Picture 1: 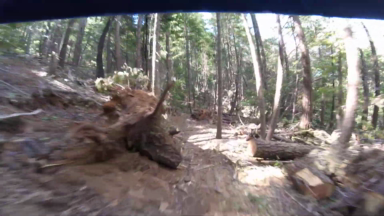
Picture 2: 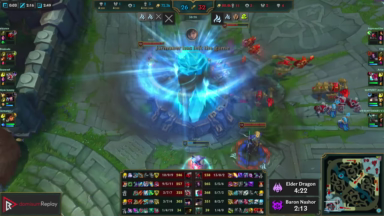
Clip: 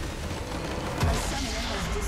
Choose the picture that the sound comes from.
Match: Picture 2